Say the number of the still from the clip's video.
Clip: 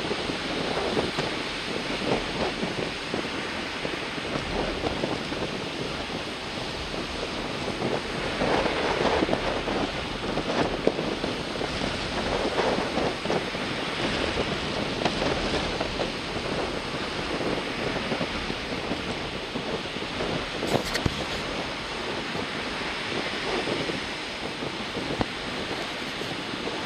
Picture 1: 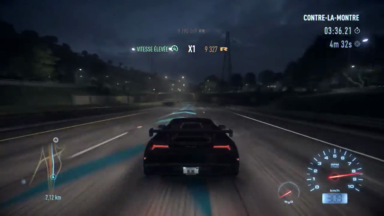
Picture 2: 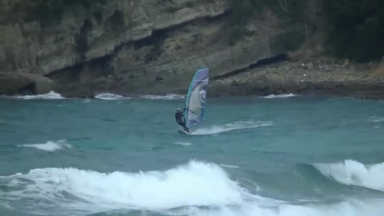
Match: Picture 2